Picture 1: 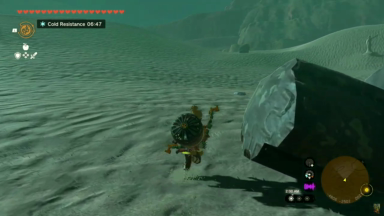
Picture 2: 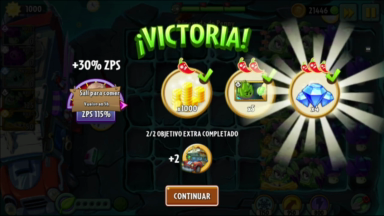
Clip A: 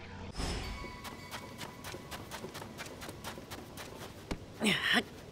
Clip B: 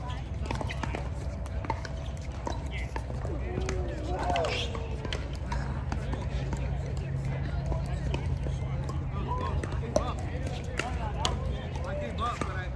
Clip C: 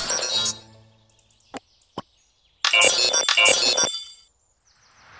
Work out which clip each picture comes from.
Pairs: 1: A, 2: C